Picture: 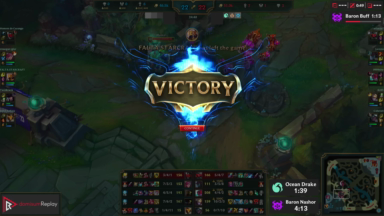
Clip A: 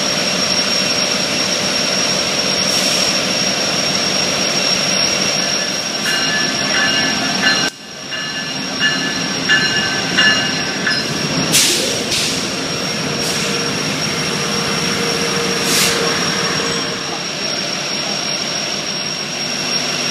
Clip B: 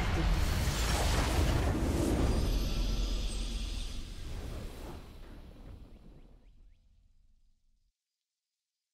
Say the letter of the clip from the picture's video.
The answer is B